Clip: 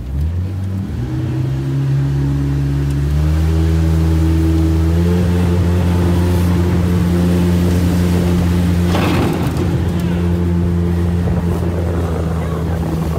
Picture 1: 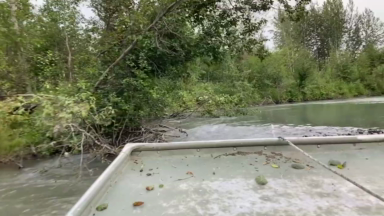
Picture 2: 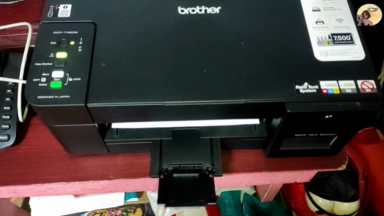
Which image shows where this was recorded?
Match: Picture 1